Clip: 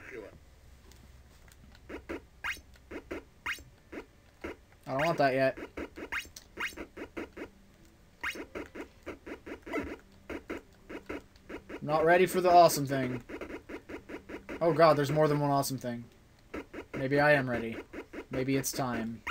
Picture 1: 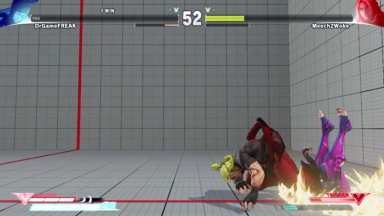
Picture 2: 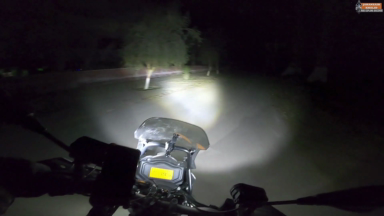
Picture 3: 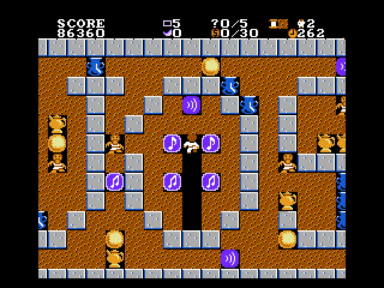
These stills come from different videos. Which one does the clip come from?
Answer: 3